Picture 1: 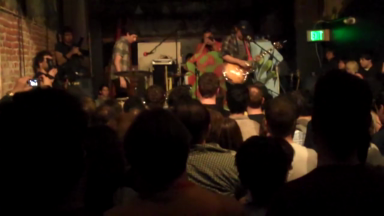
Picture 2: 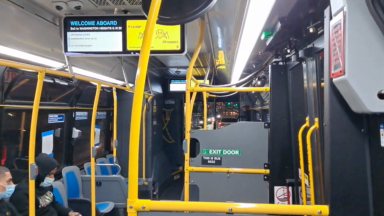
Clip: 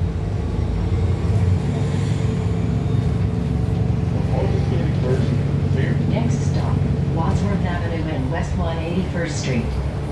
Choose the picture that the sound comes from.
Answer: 2